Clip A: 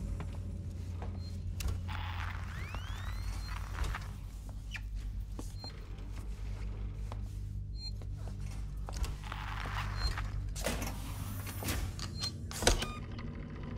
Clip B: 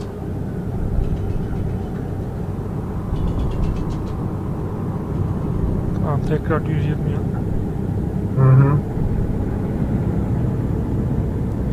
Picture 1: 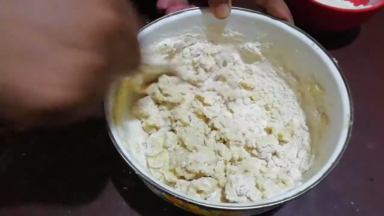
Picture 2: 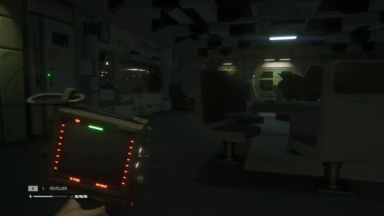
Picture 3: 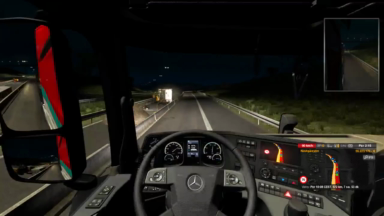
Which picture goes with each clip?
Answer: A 2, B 3